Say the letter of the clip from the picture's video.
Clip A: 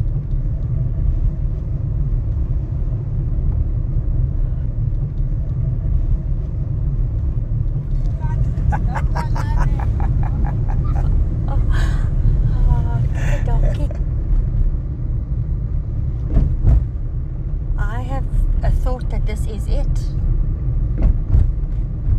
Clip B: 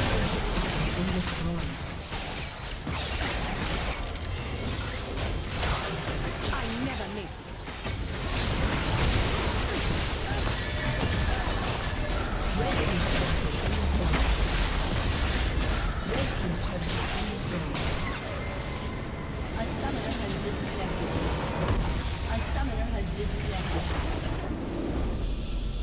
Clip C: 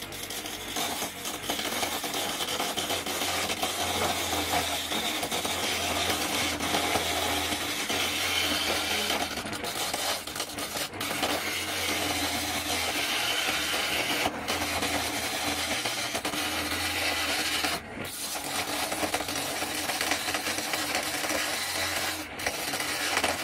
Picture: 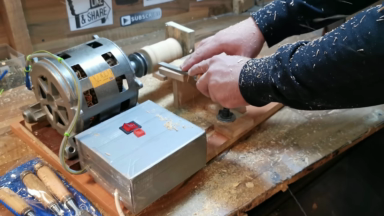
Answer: C